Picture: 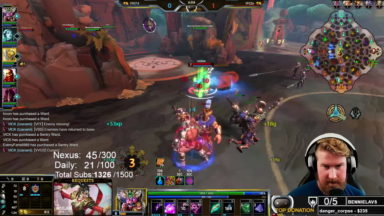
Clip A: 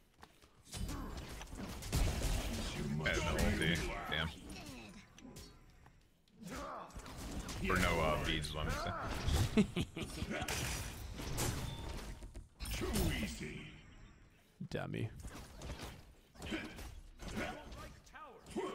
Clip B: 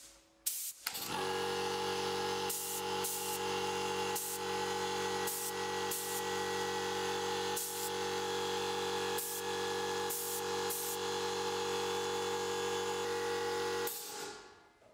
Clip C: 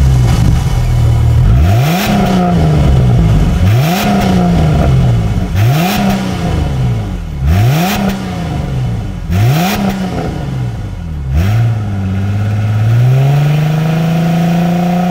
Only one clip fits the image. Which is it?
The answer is A